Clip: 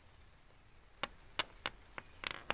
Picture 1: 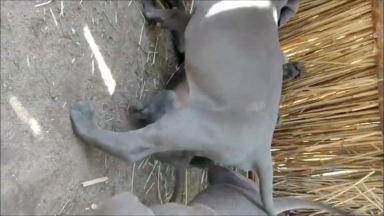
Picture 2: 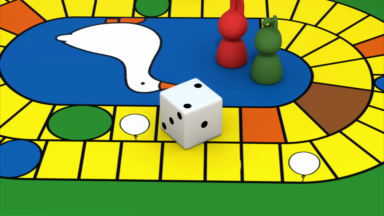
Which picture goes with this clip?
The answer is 2